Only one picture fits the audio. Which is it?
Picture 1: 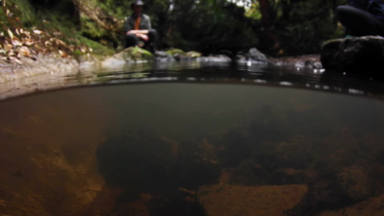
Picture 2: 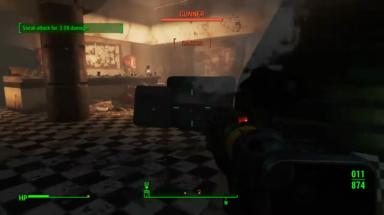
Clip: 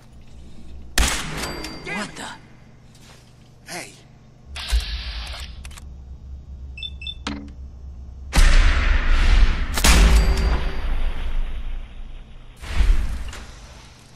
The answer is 2